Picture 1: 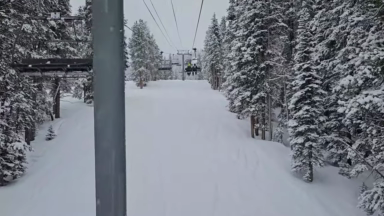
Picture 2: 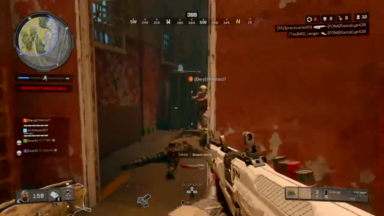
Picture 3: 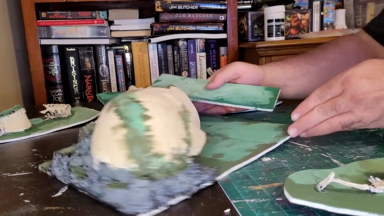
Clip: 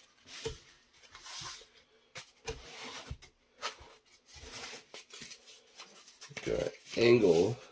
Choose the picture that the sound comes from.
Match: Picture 3